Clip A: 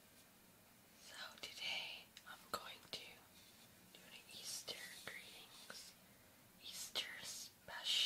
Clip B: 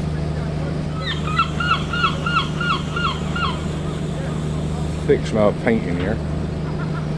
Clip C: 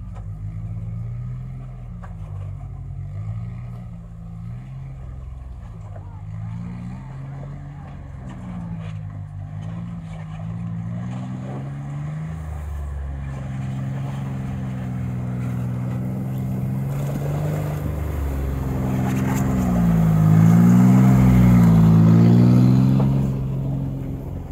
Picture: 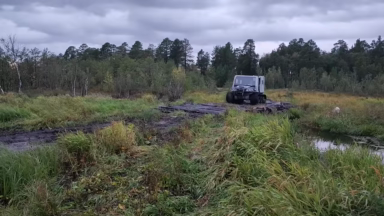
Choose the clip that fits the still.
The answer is C